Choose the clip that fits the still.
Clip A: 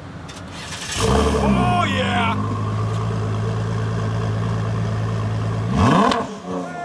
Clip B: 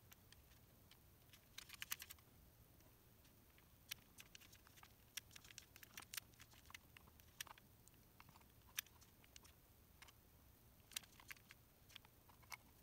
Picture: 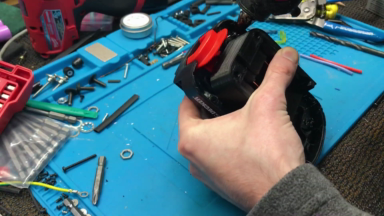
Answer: B